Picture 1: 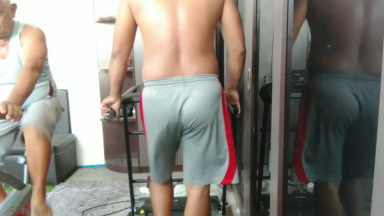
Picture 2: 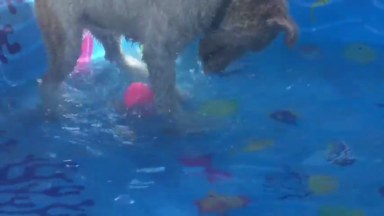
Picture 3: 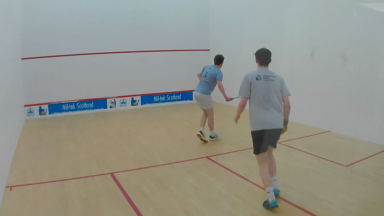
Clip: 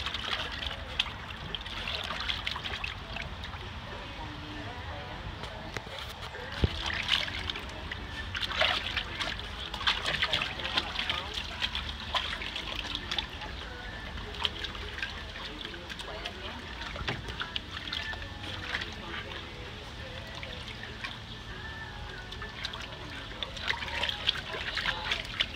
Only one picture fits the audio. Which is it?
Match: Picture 2